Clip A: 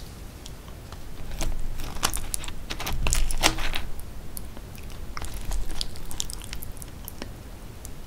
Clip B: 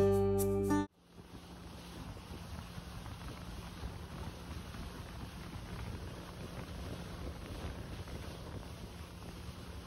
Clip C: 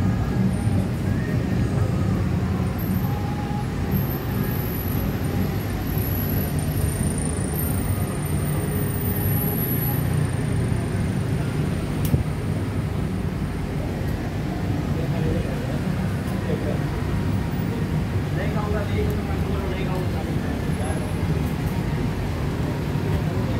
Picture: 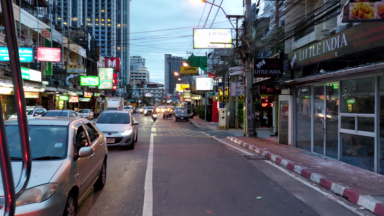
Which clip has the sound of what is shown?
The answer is C